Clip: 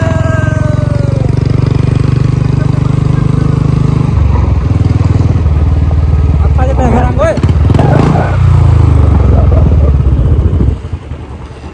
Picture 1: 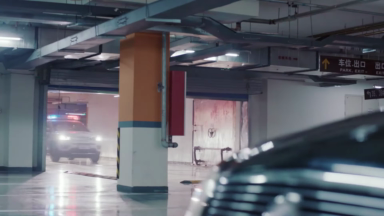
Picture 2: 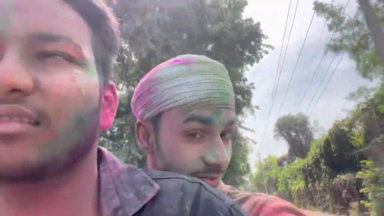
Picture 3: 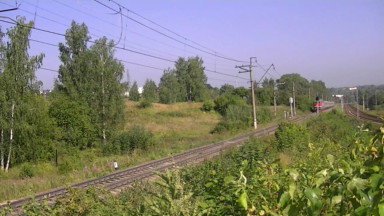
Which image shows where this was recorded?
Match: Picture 2